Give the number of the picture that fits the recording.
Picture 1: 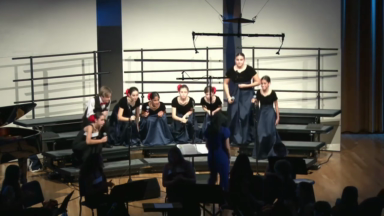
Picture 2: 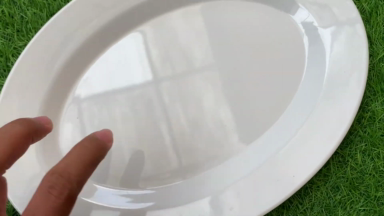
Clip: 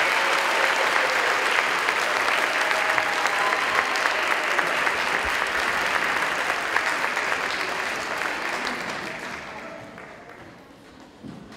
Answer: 1